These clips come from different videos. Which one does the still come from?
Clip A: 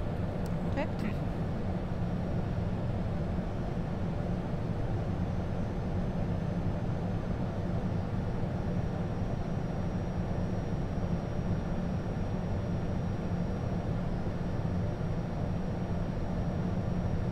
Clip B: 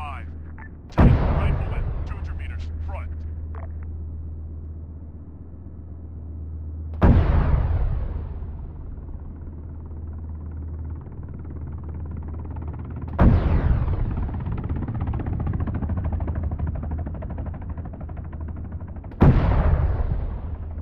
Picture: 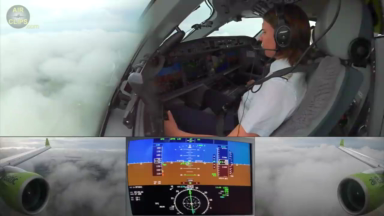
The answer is A